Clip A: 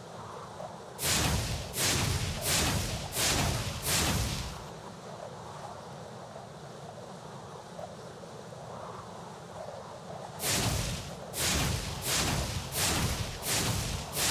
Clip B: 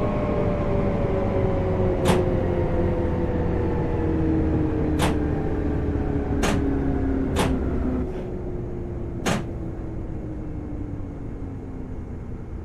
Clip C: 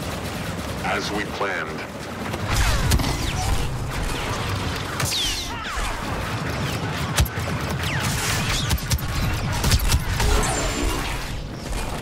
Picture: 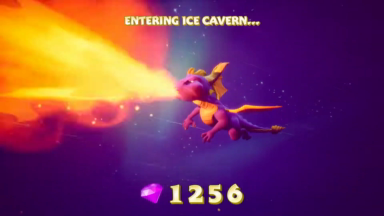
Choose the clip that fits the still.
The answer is A